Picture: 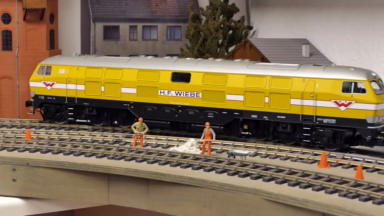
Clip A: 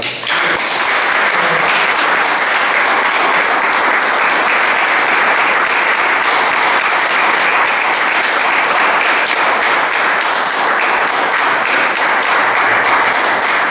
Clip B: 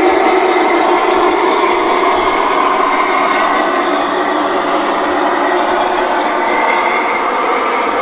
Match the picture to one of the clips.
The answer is B